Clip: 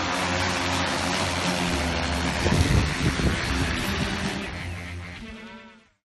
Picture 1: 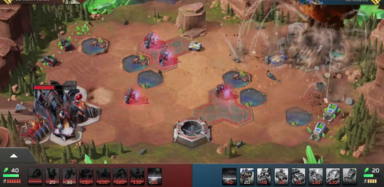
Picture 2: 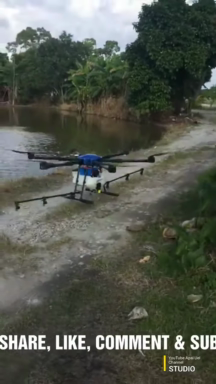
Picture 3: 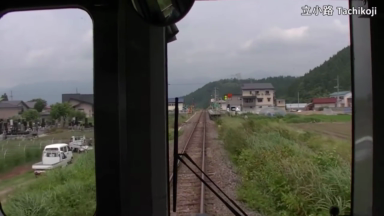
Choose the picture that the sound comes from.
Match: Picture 2